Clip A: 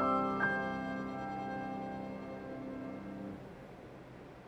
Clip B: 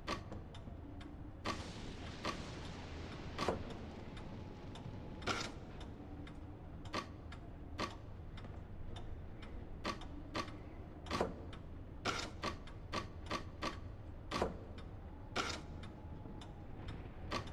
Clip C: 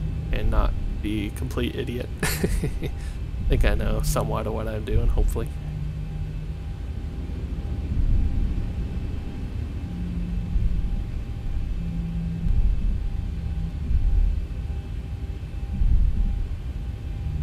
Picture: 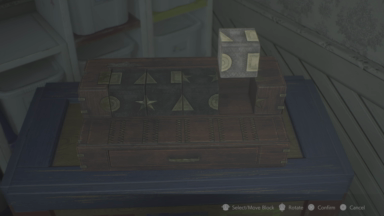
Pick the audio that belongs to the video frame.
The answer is B